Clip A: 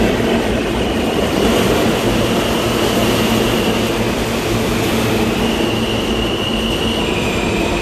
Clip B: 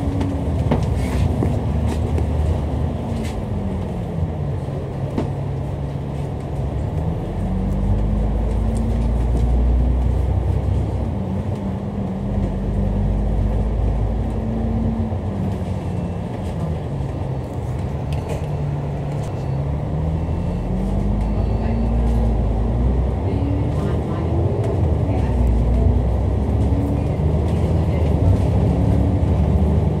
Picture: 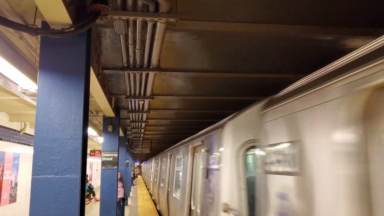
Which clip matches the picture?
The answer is A